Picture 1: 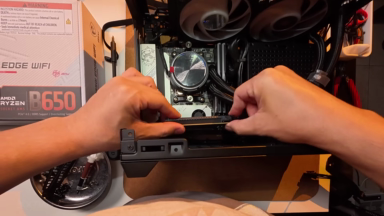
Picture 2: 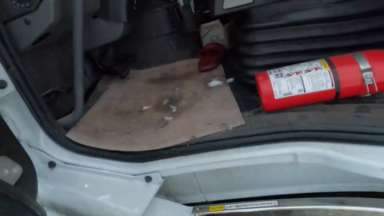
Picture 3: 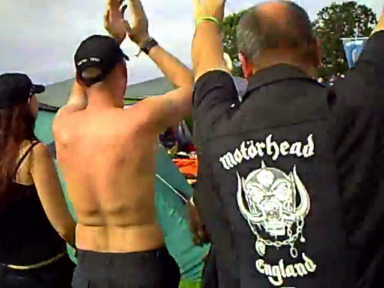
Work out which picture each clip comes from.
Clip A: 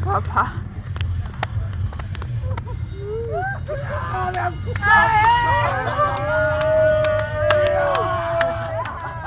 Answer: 3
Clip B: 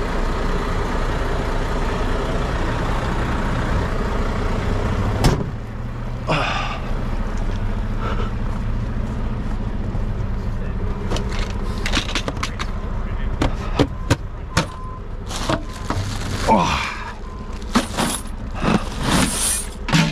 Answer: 2